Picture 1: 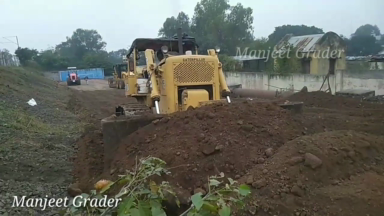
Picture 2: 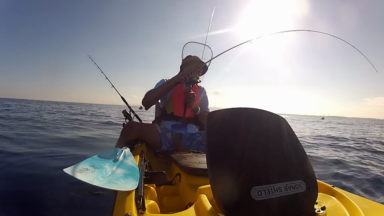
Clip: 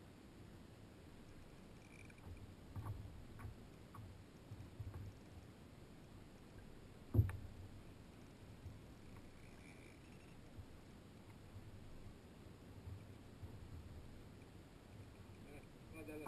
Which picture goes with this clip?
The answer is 2